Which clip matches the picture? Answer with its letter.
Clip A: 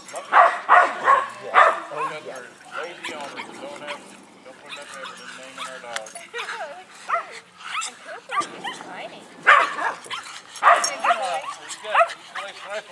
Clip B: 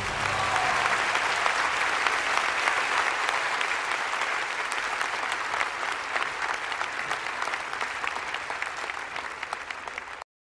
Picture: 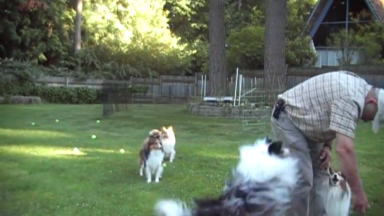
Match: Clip A